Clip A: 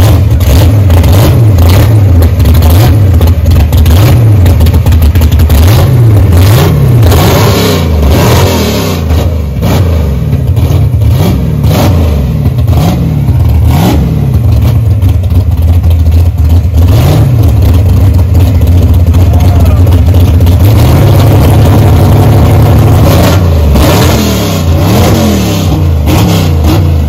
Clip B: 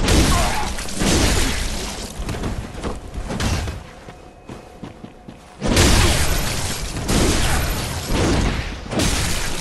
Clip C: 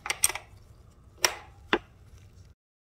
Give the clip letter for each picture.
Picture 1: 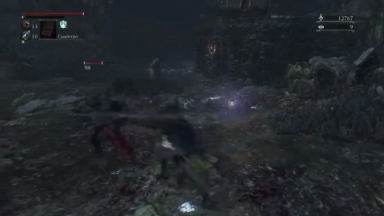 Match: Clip B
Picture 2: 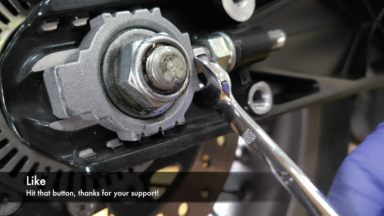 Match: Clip C